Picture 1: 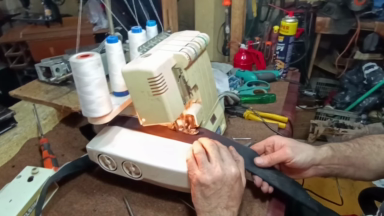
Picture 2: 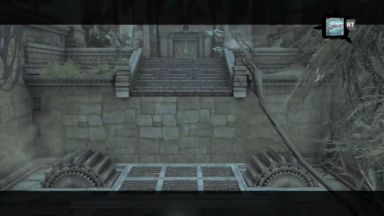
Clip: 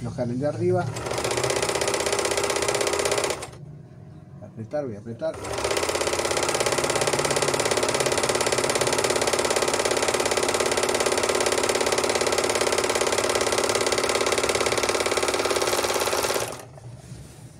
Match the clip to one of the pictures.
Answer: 1